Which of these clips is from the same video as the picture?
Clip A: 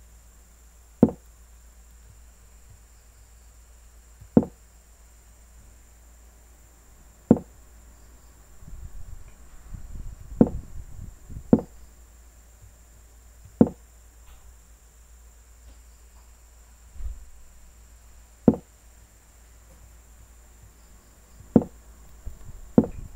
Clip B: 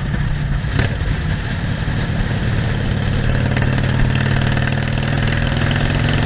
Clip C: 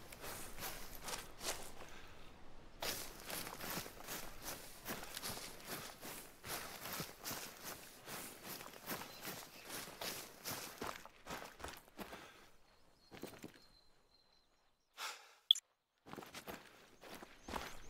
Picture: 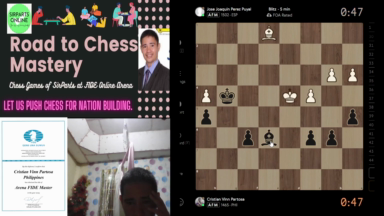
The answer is A